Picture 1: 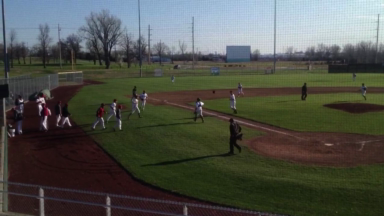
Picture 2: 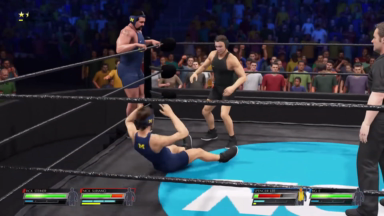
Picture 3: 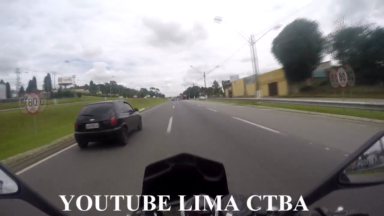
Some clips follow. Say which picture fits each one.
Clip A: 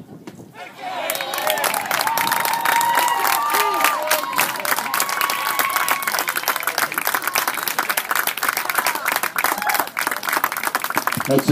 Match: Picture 1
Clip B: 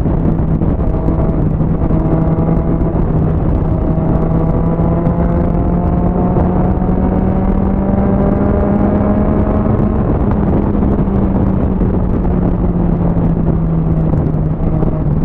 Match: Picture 3